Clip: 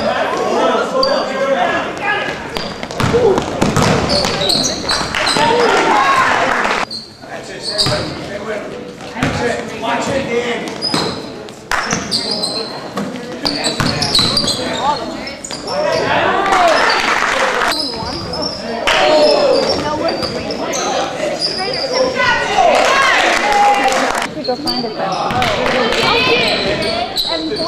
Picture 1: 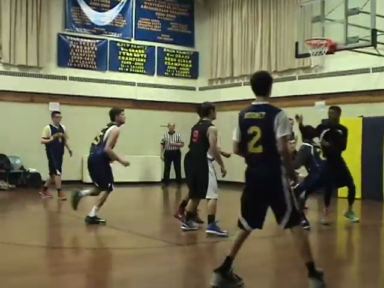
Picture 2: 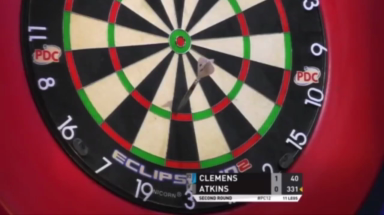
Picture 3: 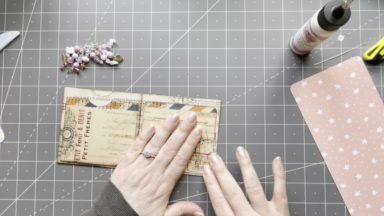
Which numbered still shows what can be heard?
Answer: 1